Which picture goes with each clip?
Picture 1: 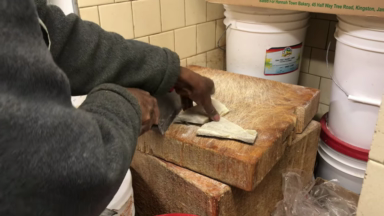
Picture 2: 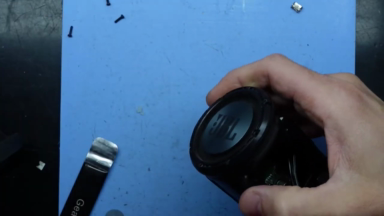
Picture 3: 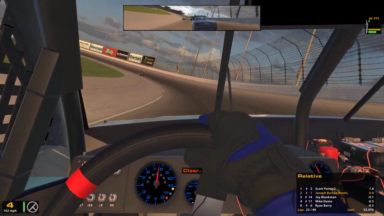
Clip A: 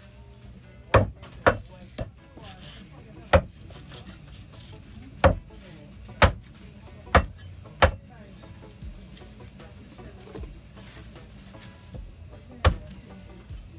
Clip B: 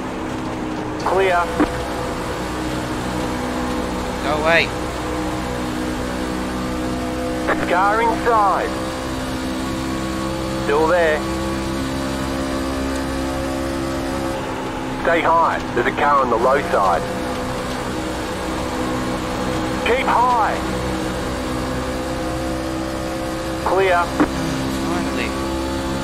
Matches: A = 1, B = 3